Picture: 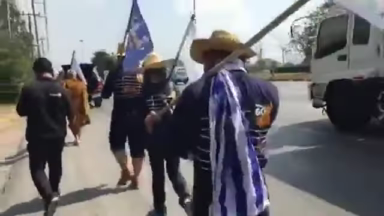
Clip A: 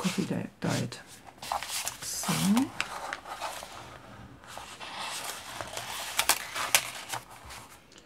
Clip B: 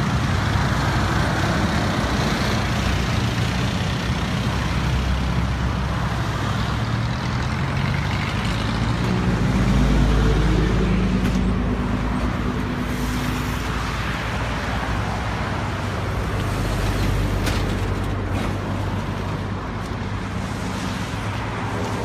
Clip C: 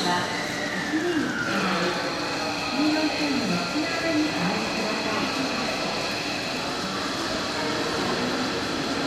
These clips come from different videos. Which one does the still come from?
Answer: B